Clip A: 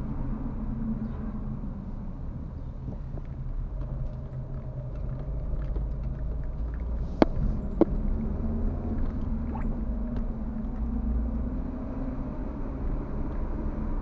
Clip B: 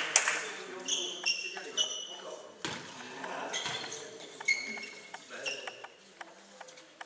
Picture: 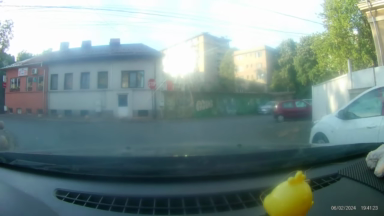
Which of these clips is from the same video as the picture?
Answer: A